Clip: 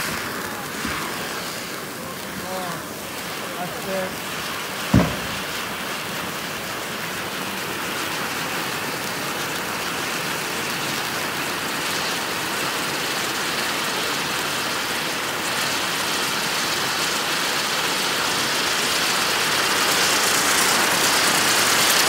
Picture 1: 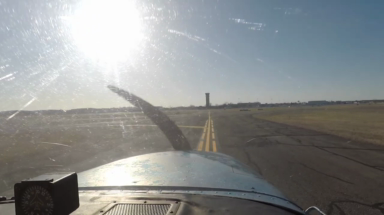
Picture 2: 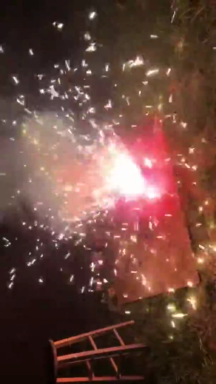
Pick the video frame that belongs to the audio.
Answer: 2